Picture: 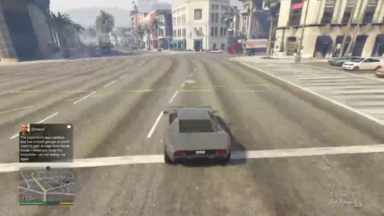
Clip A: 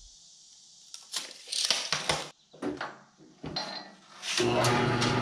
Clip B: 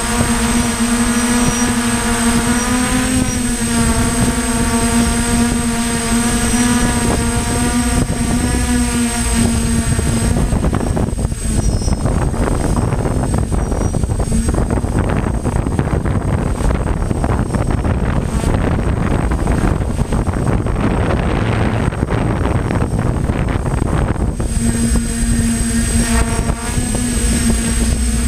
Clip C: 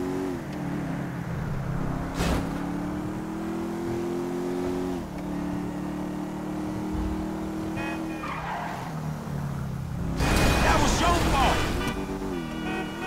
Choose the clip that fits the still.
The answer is C